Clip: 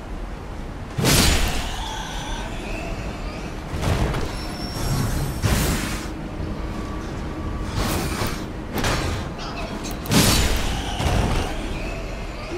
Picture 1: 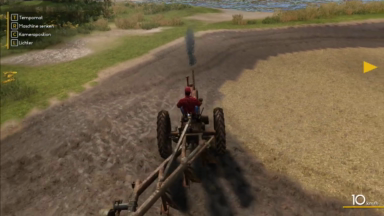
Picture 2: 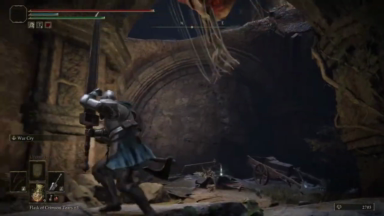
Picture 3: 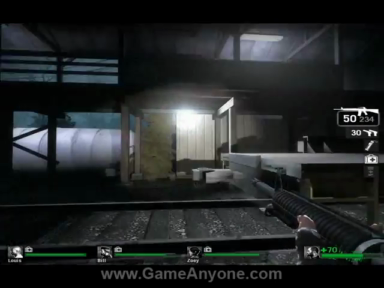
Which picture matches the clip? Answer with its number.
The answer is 2